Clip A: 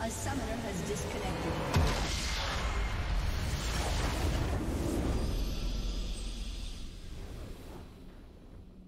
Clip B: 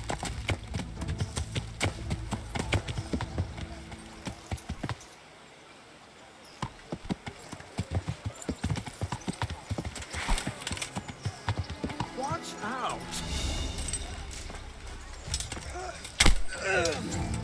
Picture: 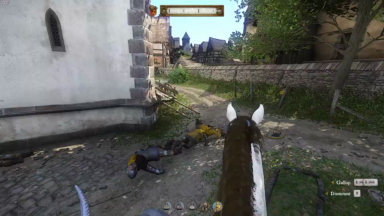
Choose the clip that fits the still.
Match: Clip B